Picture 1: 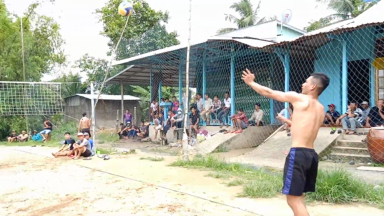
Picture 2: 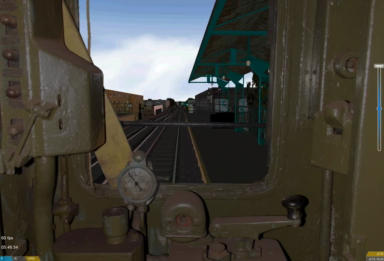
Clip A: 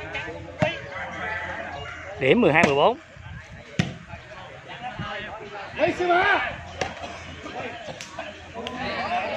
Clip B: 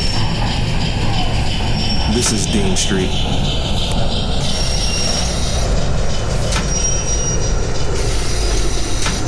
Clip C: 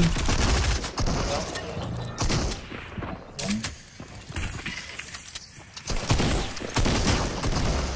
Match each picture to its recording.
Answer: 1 A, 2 B